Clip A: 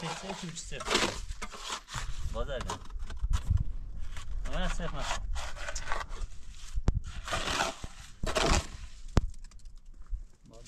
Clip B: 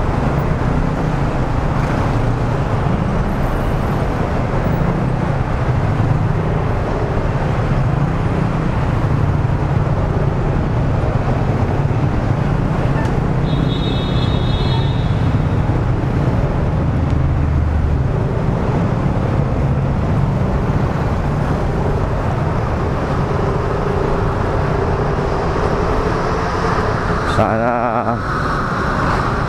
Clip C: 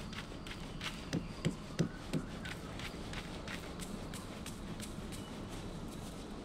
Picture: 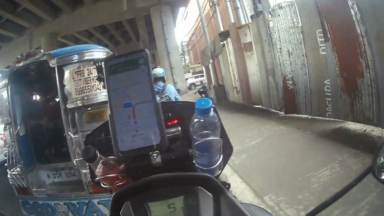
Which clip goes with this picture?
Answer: B